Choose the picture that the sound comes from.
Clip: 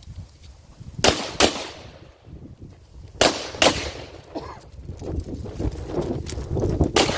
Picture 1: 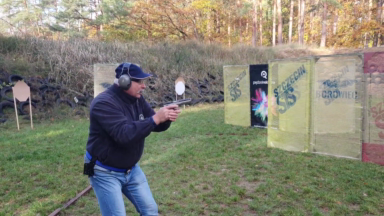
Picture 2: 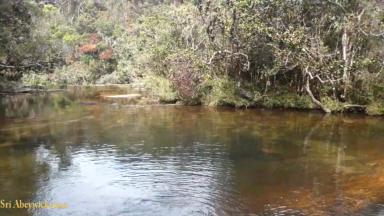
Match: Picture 1